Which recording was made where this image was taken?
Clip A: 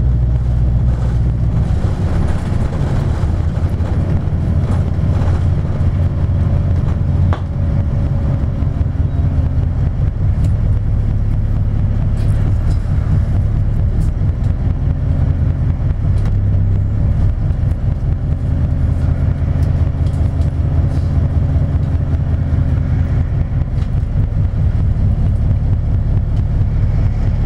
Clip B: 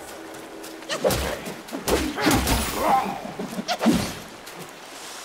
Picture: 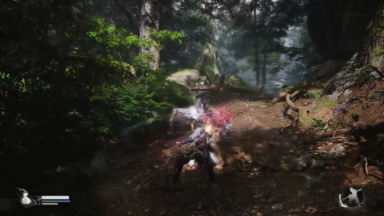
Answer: B